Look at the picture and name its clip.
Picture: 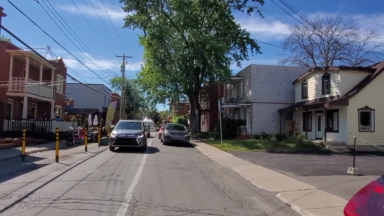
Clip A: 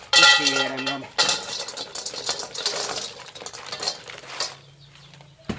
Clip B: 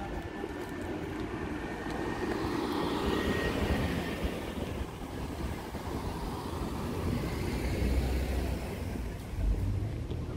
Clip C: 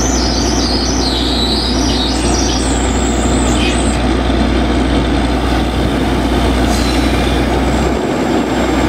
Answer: B